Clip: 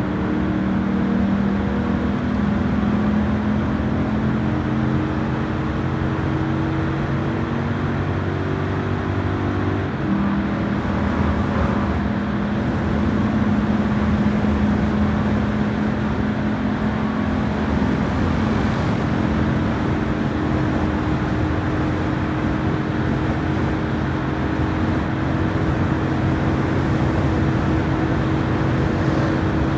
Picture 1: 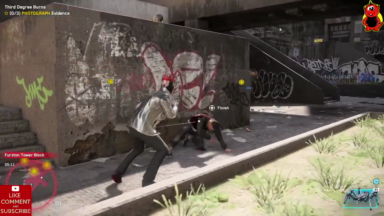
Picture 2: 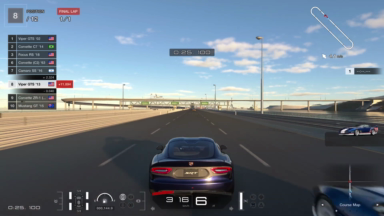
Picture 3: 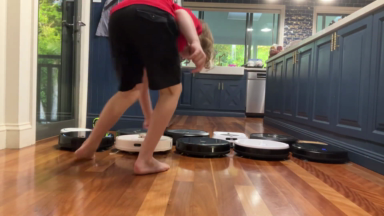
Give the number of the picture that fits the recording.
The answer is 2